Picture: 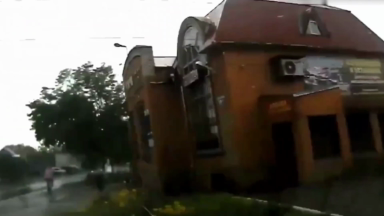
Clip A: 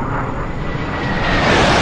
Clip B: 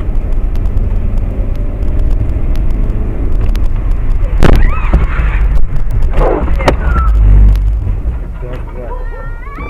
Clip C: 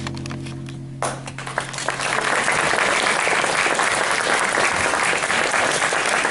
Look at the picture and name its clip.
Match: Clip B